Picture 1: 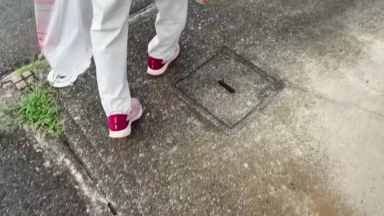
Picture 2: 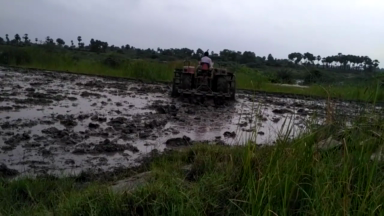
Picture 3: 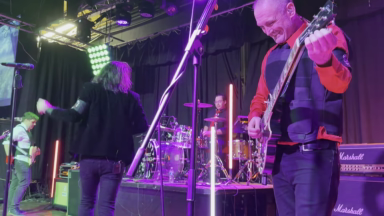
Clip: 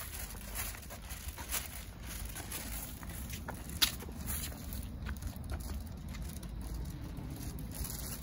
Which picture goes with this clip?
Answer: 1